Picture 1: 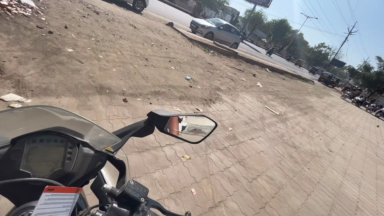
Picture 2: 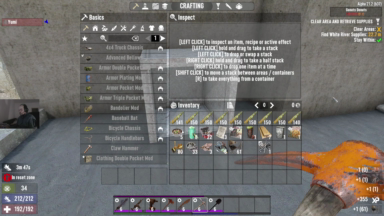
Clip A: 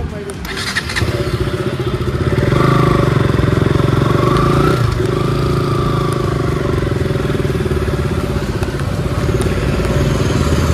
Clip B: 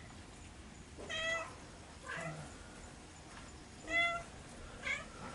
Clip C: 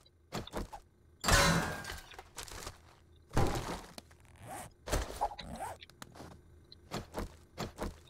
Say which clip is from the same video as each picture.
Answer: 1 A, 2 C